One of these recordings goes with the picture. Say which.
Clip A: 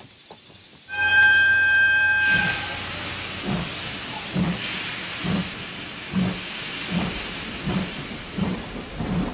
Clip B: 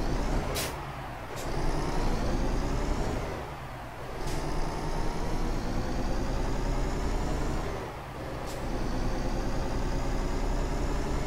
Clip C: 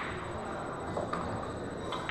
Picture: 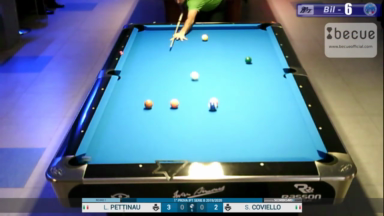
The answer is C